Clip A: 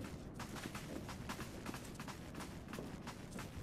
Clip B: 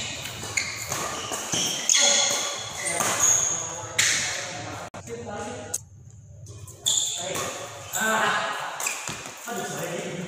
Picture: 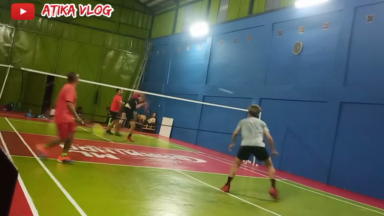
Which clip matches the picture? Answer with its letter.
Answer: B